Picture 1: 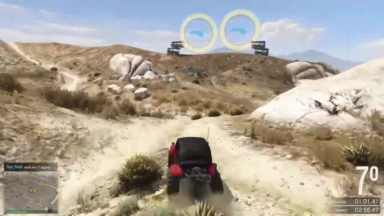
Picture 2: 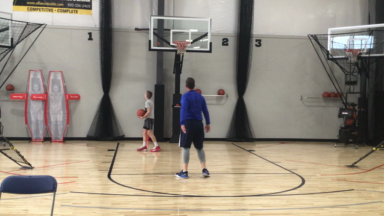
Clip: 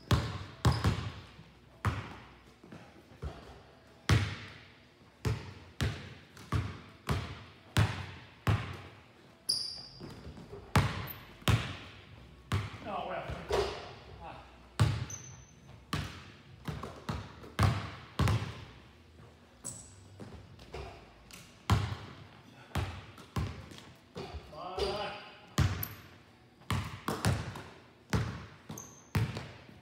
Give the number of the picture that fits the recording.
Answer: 2